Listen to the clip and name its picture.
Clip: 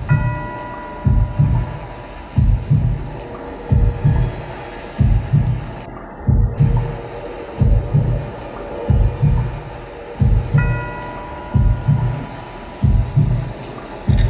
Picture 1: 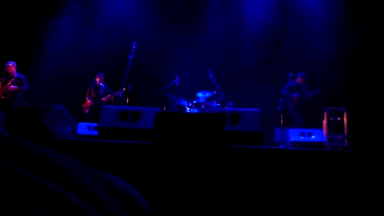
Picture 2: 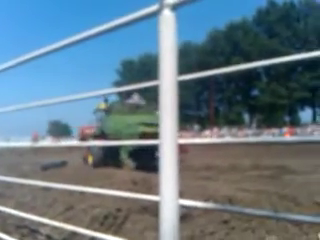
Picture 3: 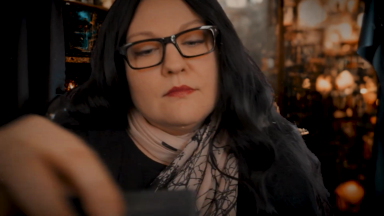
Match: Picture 1